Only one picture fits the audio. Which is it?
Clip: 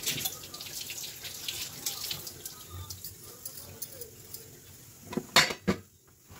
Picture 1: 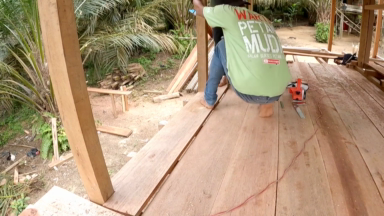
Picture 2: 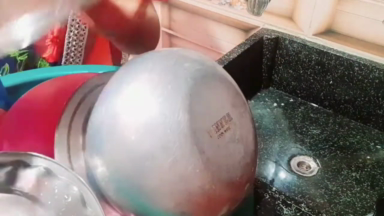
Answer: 2